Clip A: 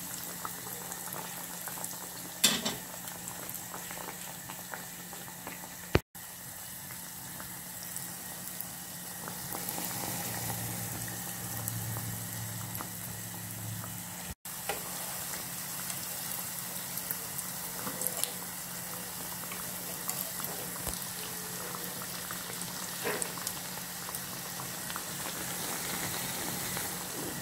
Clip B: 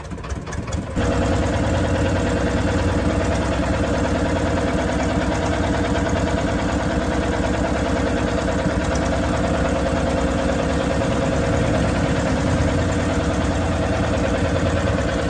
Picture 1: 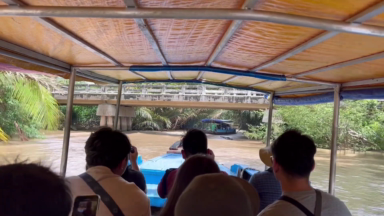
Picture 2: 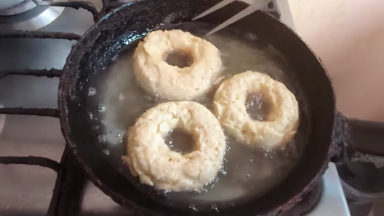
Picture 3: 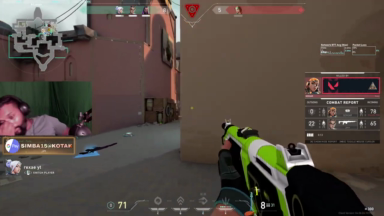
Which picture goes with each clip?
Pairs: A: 2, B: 1